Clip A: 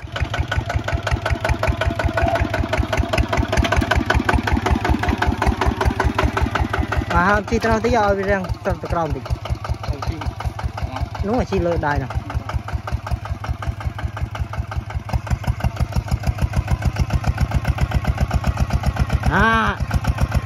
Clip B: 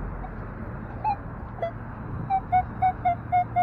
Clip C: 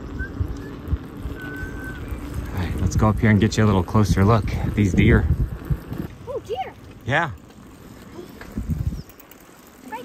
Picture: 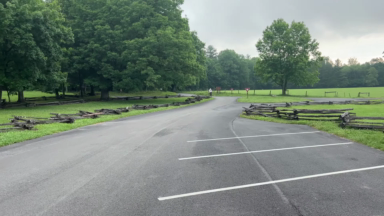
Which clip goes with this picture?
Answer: C